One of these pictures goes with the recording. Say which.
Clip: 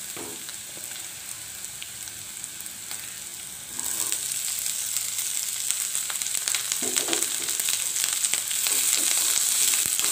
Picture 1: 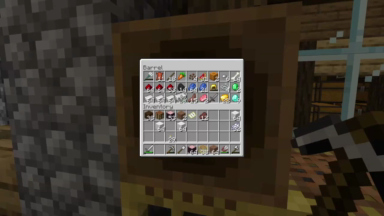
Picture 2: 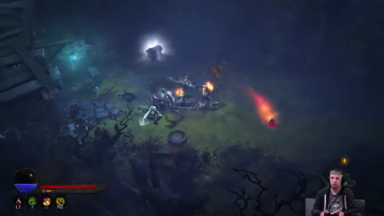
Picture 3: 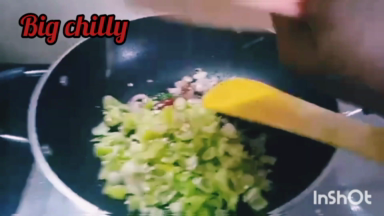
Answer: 3